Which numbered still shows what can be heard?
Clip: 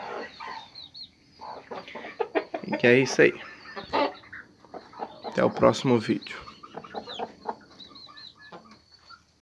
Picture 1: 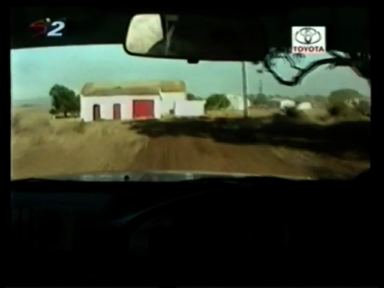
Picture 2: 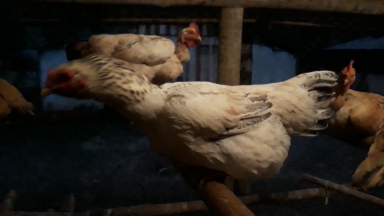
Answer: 2